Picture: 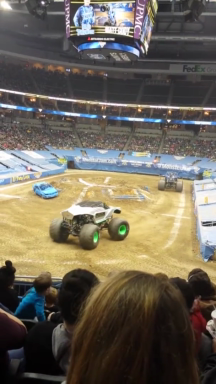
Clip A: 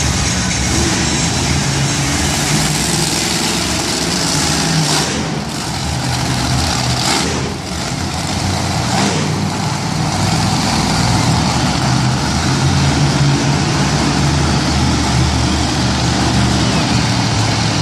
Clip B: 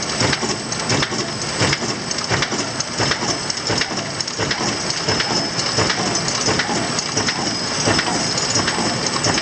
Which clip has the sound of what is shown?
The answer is A